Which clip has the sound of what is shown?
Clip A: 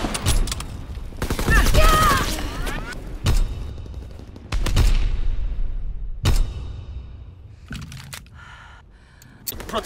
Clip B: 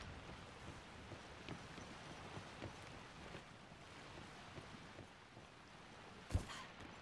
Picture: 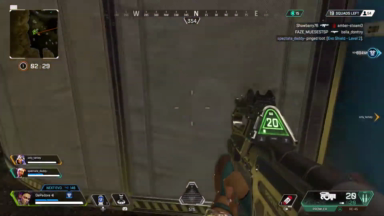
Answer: B